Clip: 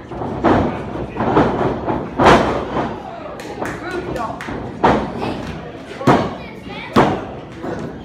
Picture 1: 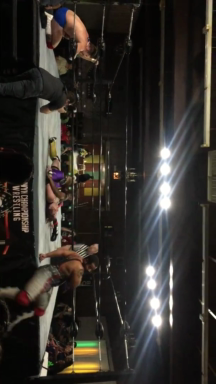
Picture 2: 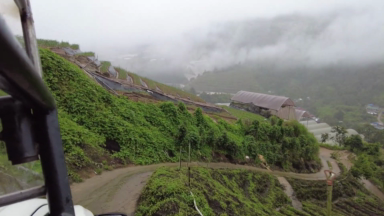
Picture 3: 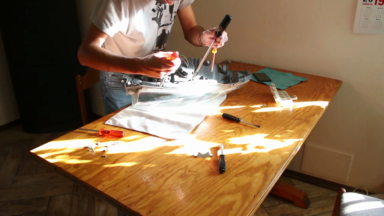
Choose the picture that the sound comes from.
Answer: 1